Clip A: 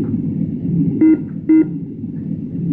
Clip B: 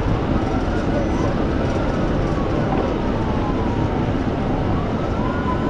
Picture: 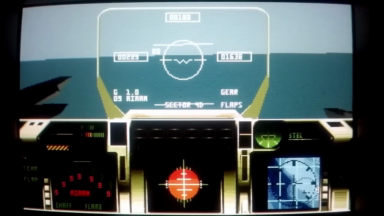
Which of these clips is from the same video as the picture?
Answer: A